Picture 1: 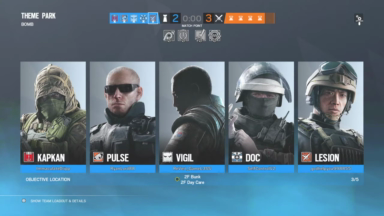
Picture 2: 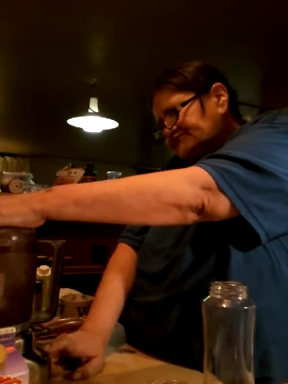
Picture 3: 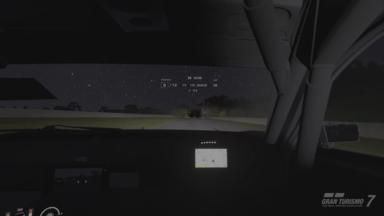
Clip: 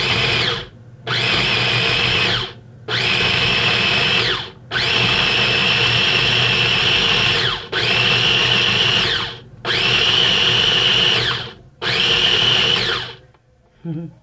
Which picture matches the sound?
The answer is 2